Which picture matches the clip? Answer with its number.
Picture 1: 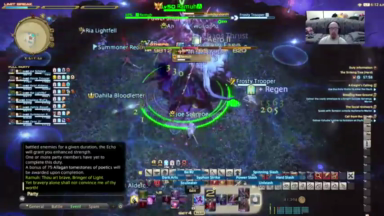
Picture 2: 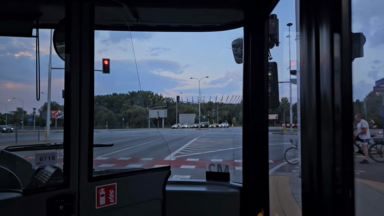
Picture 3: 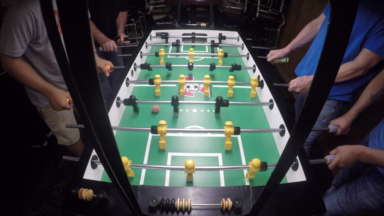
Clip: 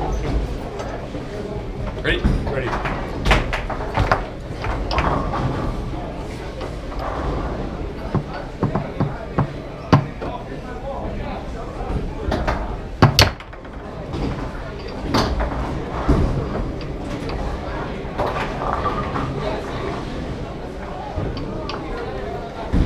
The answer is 3